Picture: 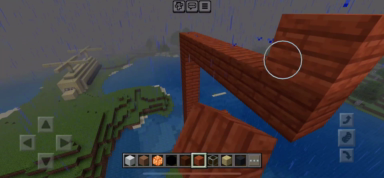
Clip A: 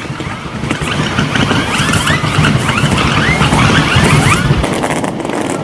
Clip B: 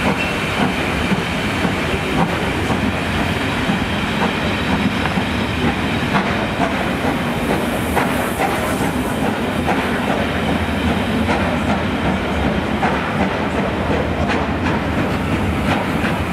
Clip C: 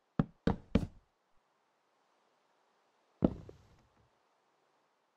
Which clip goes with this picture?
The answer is C